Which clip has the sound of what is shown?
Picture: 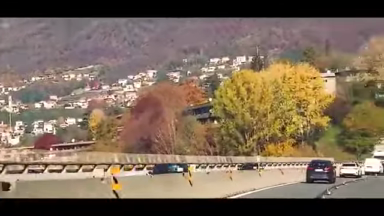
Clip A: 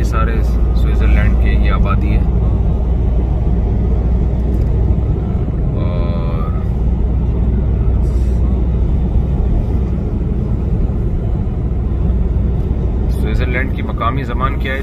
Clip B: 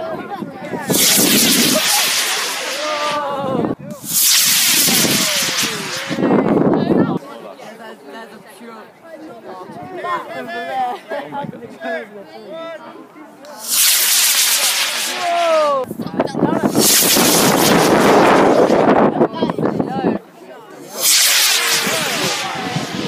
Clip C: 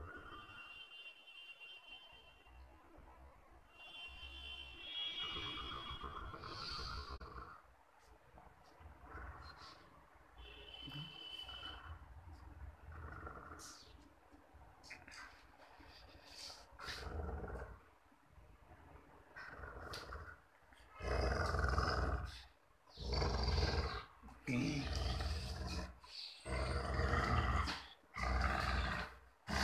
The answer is A